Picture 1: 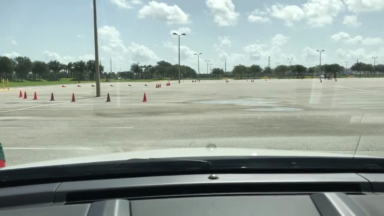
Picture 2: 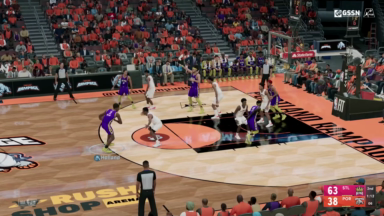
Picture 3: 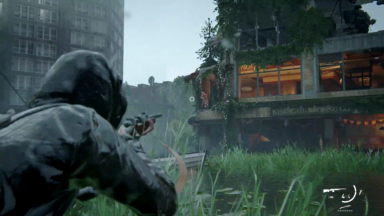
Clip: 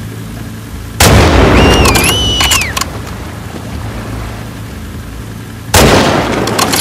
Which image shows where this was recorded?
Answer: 3